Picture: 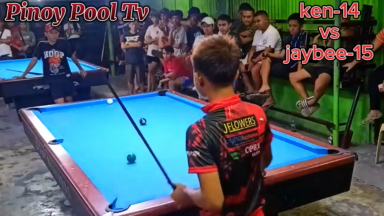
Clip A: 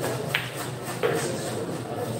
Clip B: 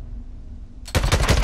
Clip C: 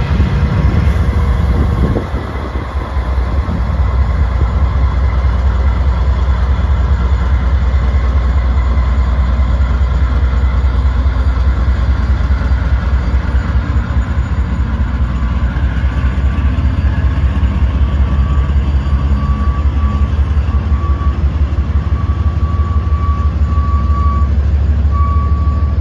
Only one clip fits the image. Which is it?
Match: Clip A